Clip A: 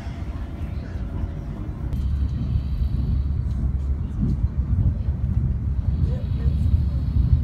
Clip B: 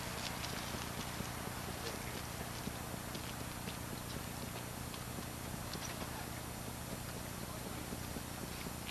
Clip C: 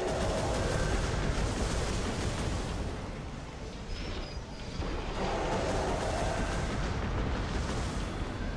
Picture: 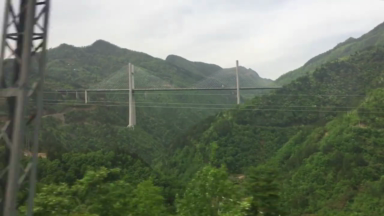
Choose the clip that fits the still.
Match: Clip A